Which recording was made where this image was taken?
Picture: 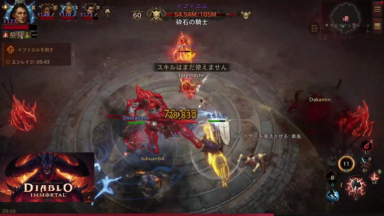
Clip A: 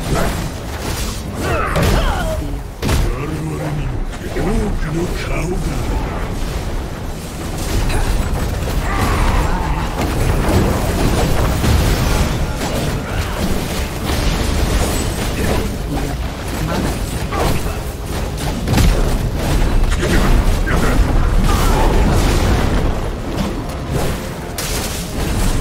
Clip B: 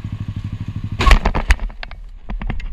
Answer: A